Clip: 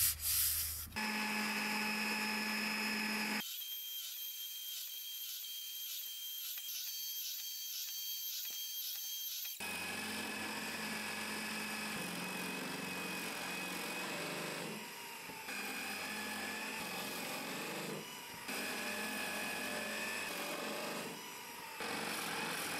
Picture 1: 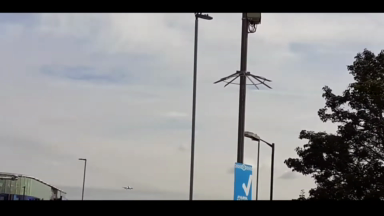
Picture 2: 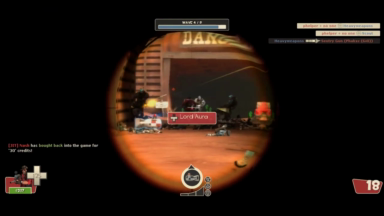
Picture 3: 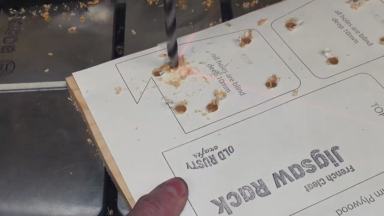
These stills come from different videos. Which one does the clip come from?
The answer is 3